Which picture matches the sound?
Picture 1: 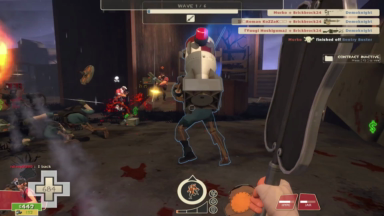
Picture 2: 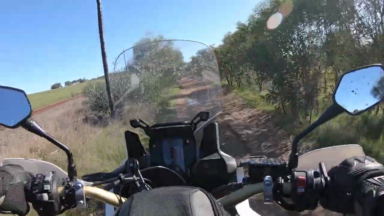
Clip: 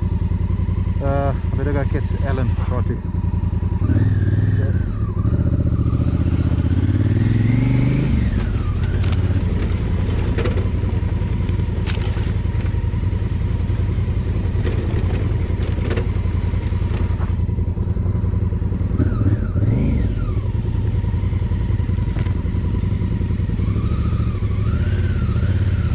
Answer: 2